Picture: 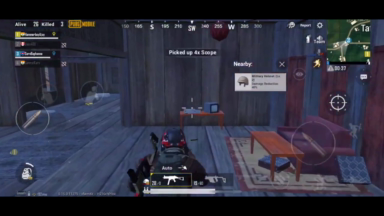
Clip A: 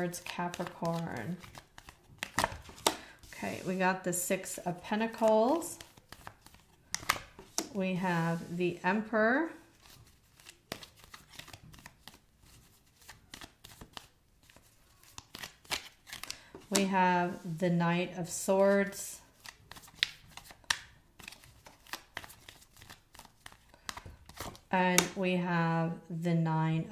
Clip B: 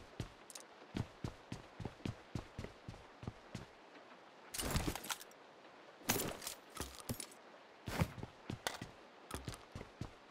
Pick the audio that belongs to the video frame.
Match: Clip B